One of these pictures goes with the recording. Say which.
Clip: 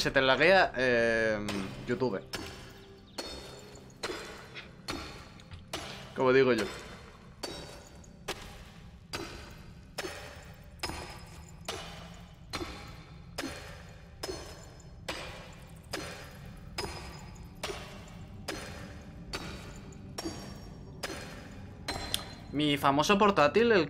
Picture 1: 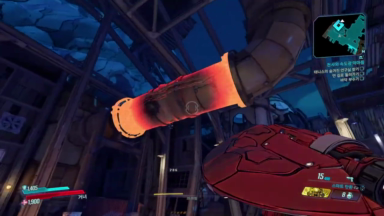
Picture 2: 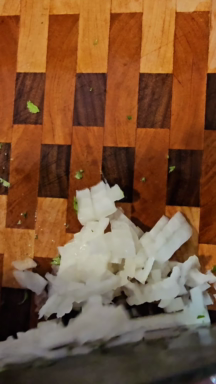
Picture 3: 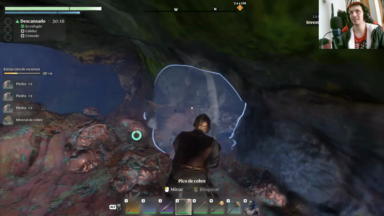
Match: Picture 3